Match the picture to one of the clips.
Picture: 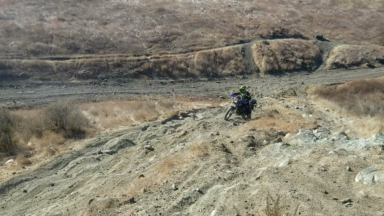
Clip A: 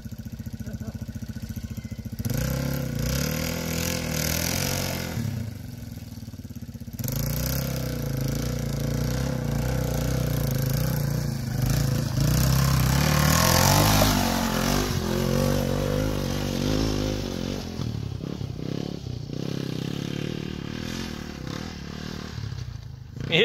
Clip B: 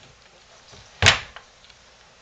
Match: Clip A